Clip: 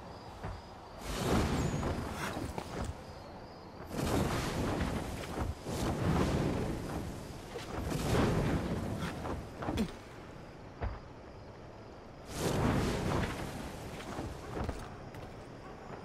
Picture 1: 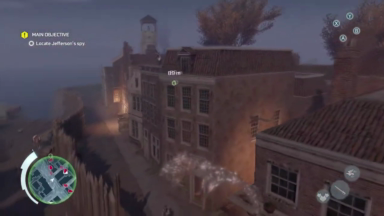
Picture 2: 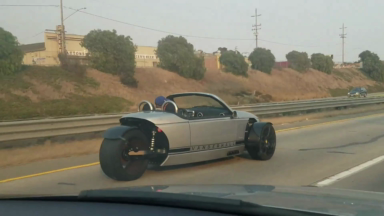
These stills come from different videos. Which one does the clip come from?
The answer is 1